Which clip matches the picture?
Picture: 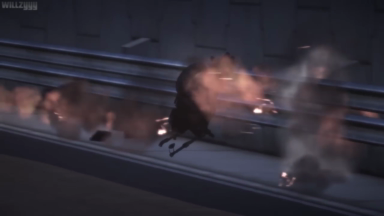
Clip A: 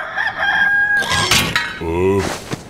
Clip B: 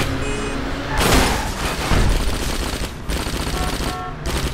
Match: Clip B